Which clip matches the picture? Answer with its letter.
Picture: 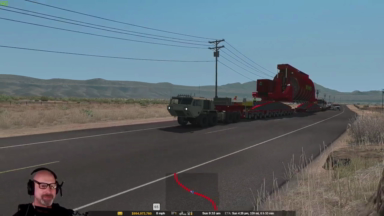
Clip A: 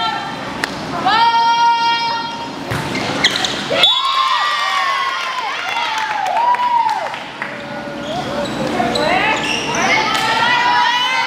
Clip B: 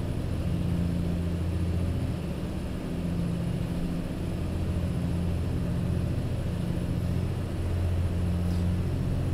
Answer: B